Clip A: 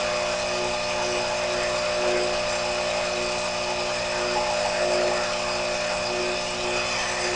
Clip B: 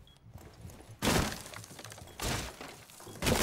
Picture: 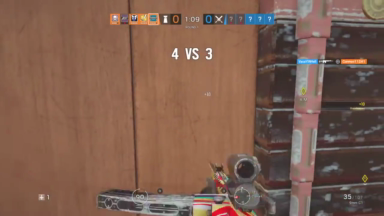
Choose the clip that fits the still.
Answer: B